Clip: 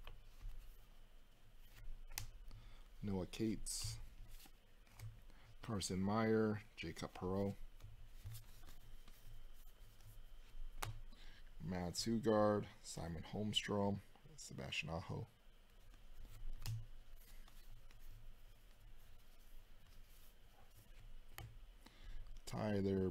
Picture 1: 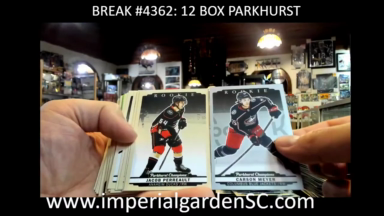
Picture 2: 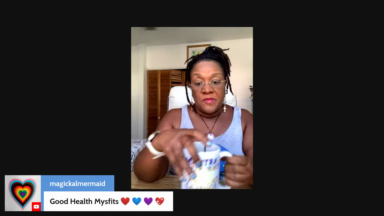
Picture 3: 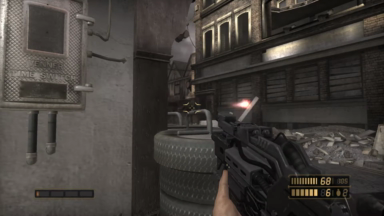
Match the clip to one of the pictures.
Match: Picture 1